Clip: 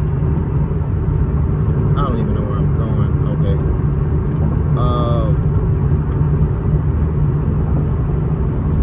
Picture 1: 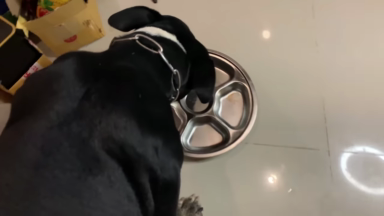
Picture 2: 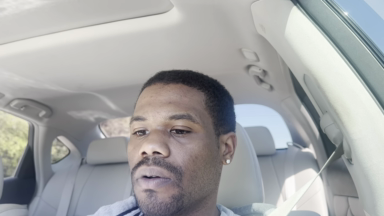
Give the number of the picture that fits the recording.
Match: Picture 2